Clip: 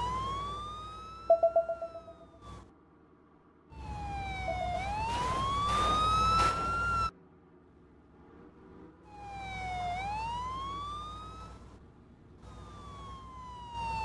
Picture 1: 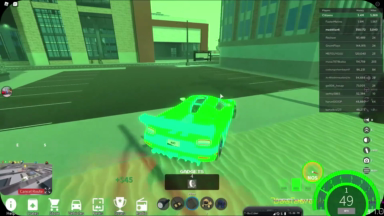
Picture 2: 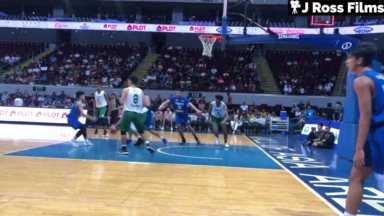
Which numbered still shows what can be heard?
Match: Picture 1